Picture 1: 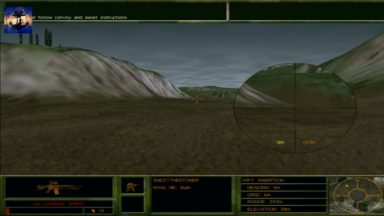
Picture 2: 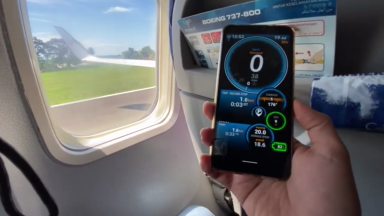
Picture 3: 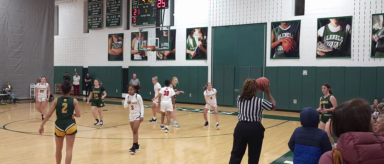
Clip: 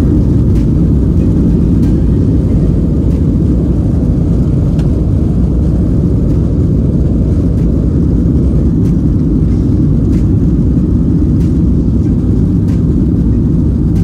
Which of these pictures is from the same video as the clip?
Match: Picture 2